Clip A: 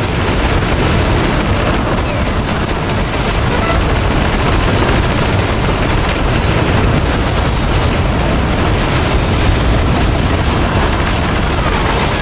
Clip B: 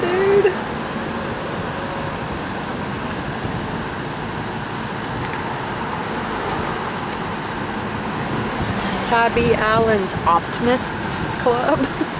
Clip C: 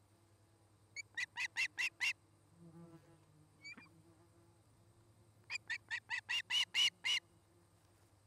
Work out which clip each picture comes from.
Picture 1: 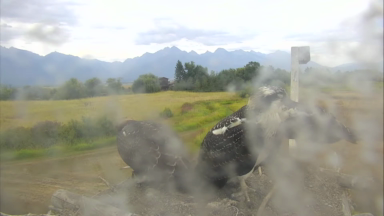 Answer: C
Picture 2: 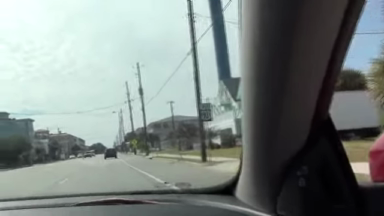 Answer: B